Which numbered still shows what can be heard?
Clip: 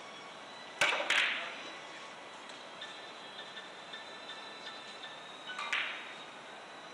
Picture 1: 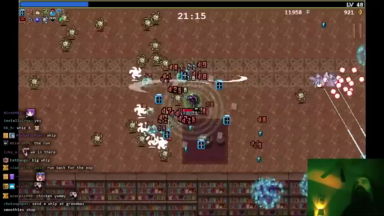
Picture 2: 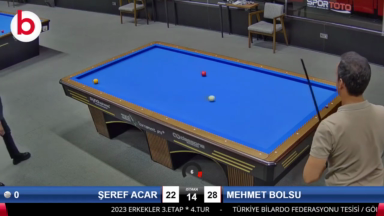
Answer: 2